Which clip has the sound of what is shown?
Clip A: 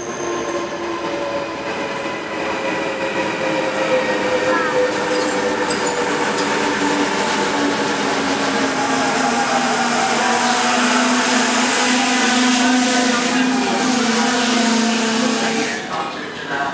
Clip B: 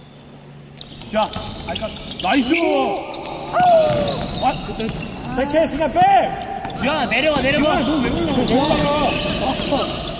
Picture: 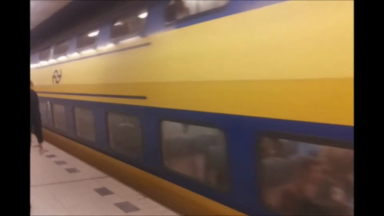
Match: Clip A